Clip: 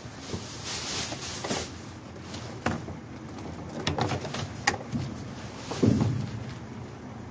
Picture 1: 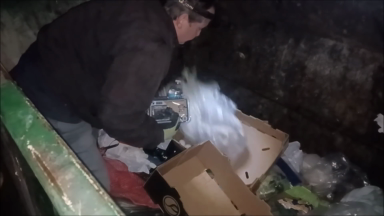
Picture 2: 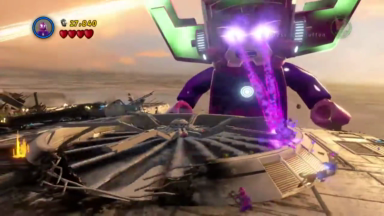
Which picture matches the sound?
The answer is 1